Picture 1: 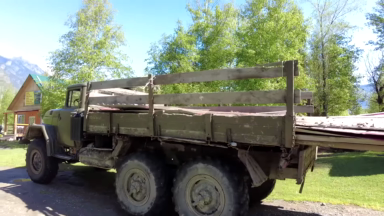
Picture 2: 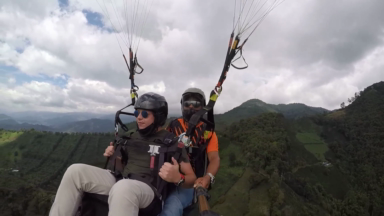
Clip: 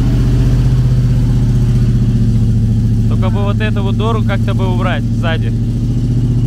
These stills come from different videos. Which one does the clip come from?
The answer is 1